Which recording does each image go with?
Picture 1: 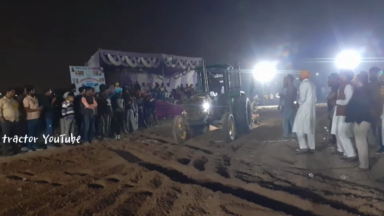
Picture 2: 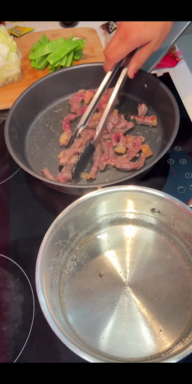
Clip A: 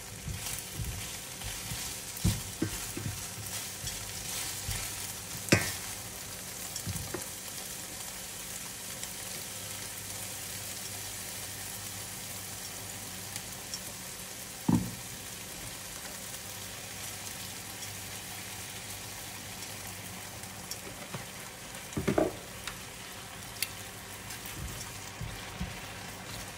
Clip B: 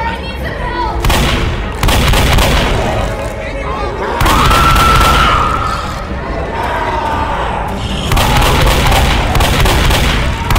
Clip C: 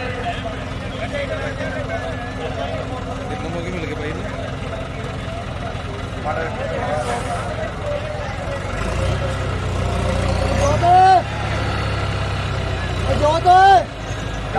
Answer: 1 C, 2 A